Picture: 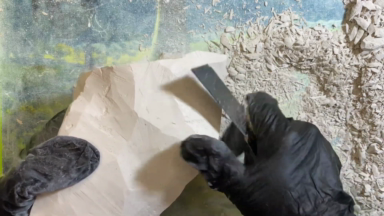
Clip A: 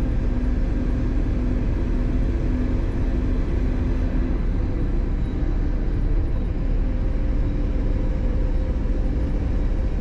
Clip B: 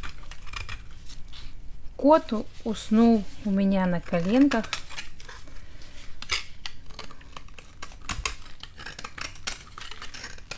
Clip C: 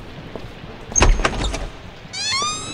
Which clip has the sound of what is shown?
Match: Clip B